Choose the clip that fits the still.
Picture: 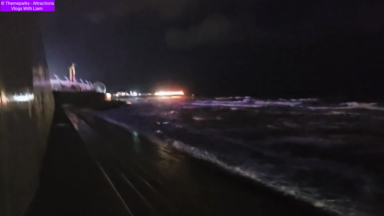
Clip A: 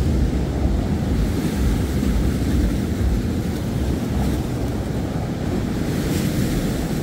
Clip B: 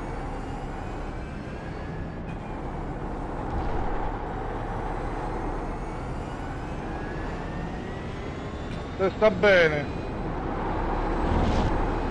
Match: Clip A